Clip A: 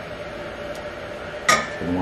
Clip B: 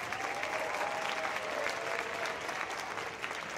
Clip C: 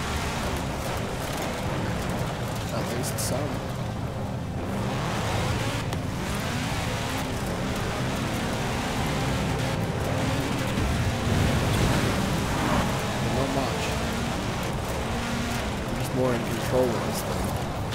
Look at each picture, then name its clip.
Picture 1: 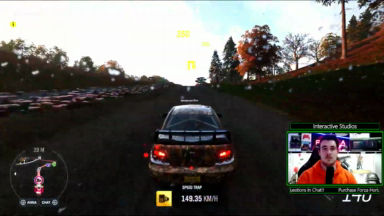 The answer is C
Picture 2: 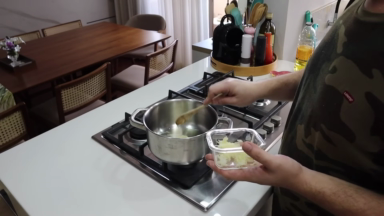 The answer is A